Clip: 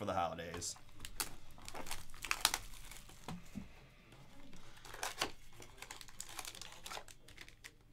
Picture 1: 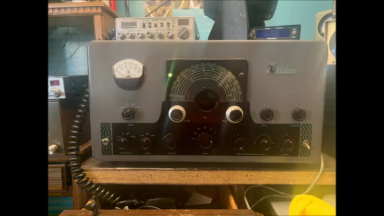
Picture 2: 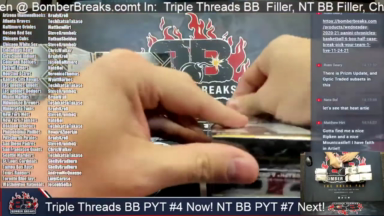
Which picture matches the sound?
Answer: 2